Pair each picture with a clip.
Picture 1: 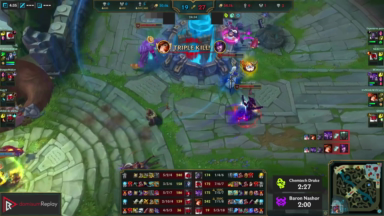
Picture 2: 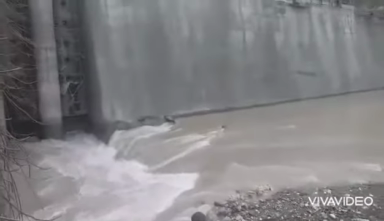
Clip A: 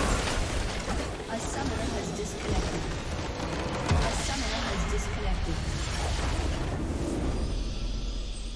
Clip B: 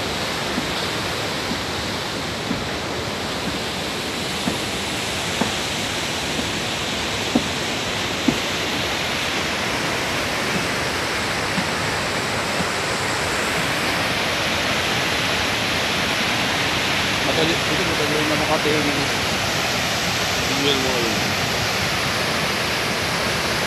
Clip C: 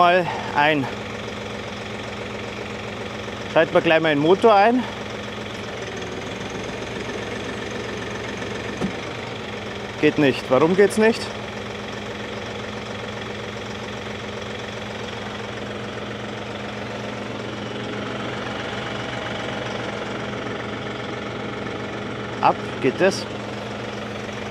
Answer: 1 A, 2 B